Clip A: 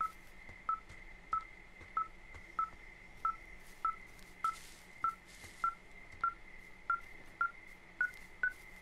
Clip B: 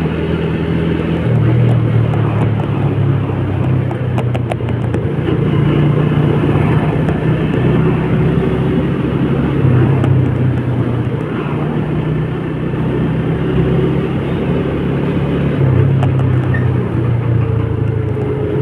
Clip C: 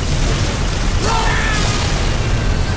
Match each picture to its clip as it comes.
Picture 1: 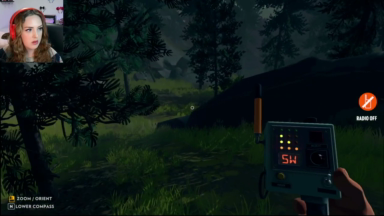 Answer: A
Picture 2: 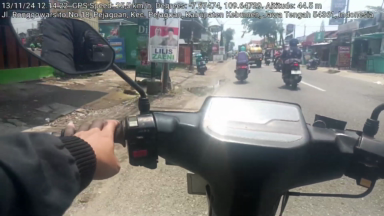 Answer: B